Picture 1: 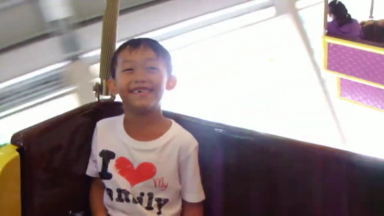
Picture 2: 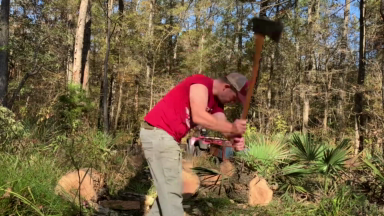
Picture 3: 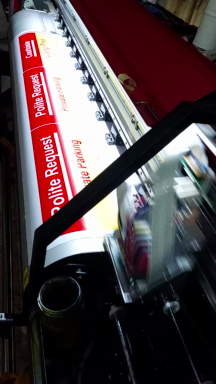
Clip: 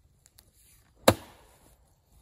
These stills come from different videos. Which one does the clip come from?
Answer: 2